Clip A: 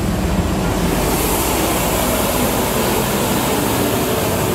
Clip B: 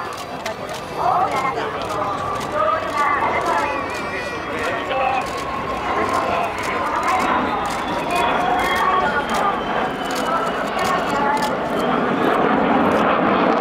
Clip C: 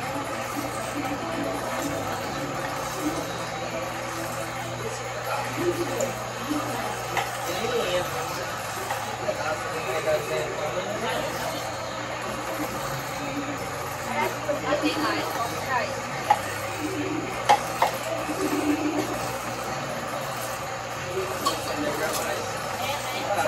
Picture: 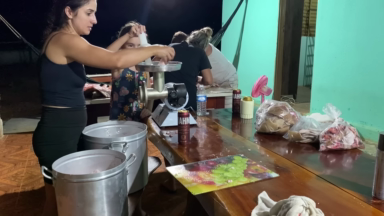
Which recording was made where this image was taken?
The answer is C